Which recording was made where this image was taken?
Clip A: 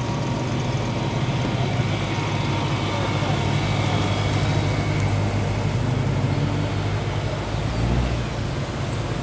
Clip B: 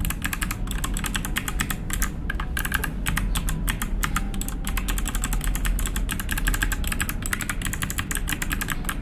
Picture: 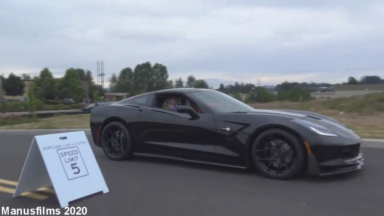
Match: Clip A